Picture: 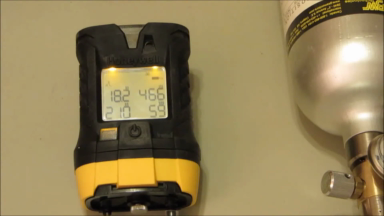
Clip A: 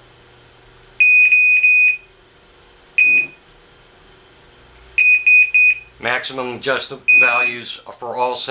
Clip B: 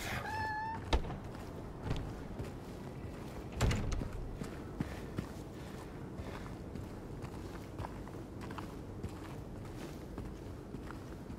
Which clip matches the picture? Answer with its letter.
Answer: A